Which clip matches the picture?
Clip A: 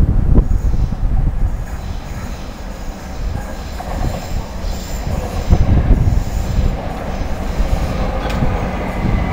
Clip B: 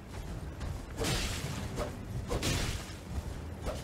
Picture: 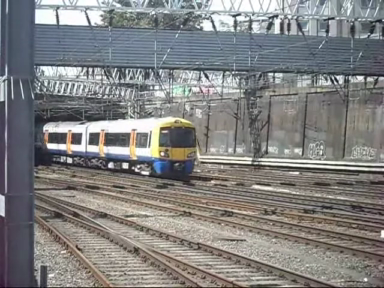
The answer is A